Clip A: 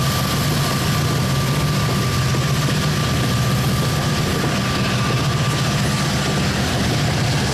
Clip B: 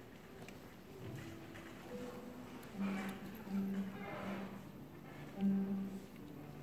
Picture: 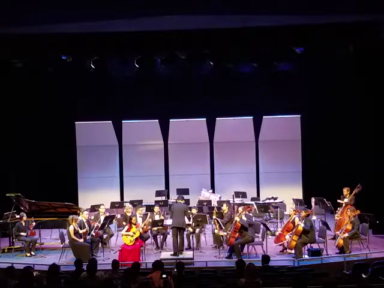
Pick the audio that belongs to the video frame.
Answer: B